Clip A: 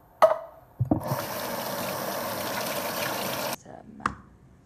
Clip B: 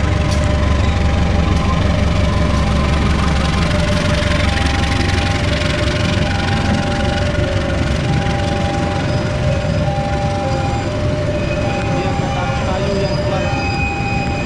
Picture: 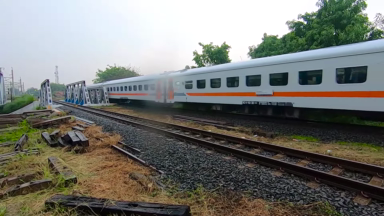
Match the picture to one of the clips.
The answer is B